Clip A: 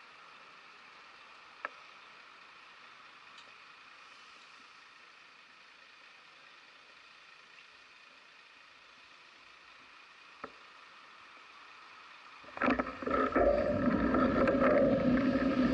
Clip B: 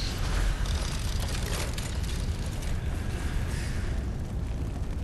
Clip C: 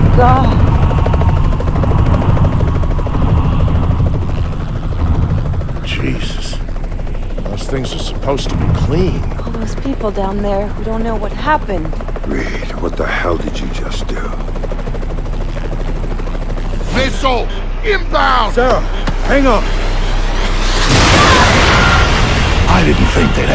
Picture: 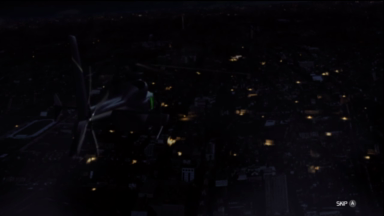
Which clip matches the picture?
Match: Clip C